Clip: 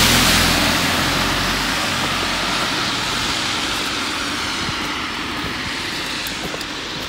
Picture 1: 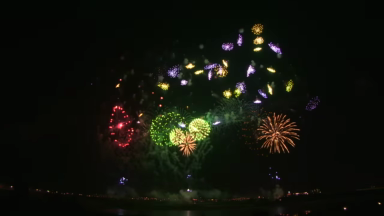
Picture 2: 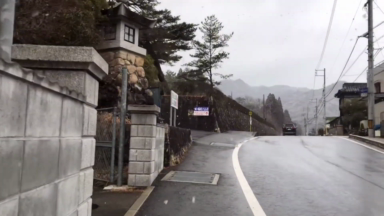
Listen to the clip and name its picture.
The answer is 2